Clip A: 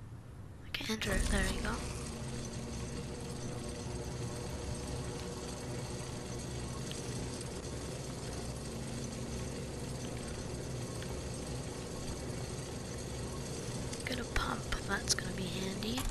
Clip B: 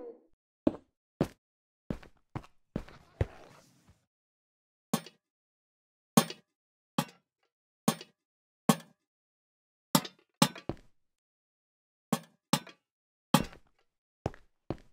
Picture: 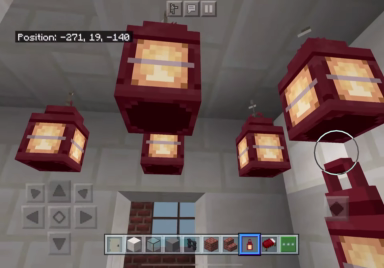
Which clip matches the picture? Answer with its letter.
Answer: B